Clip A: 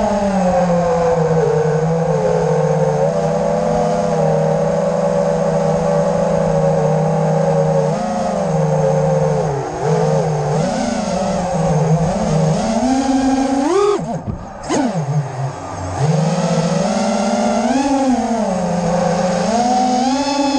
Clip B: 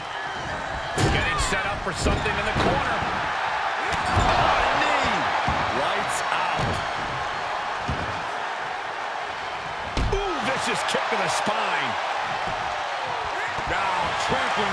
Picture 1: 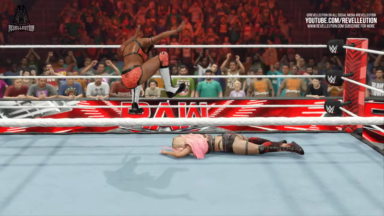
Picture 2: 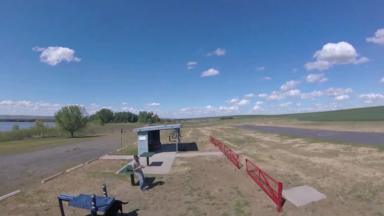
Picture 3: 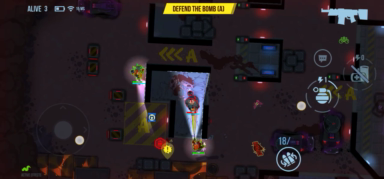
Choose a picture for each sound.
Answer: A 2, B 1